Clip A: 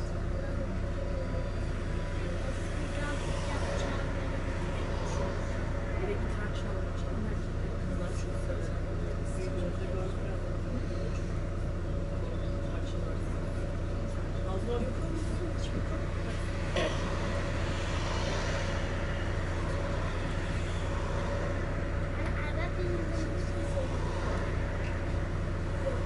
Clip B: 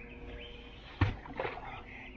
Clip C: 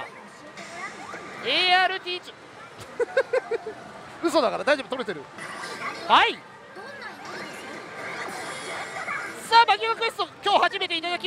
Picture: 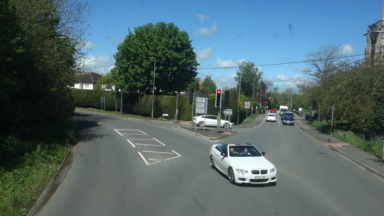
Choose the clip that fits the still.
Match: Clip A